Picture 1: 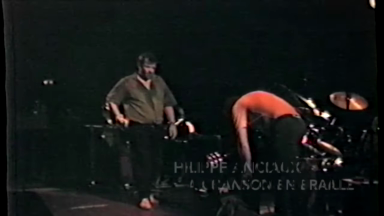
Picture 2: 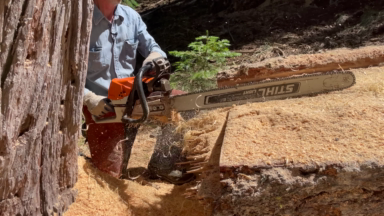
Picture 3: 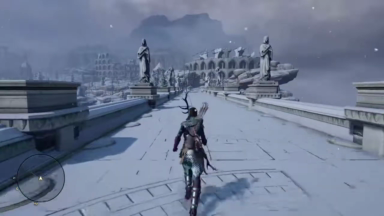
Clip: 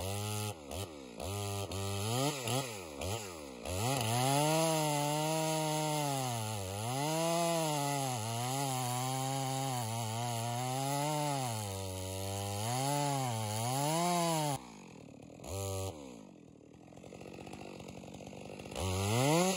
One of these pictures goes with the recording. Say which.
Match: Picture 2